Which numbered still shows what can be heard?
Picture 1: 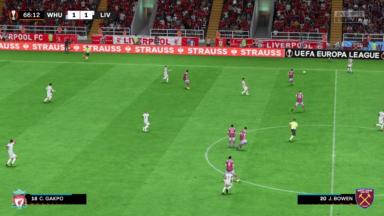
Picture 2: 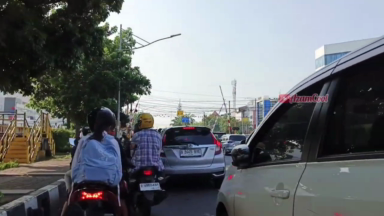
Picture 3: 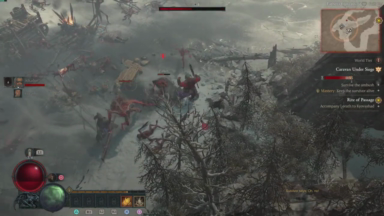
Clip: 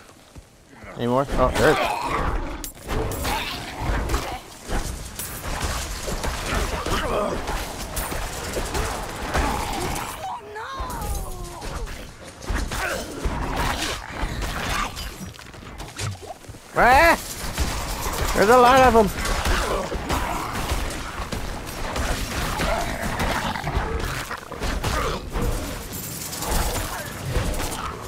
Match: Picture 3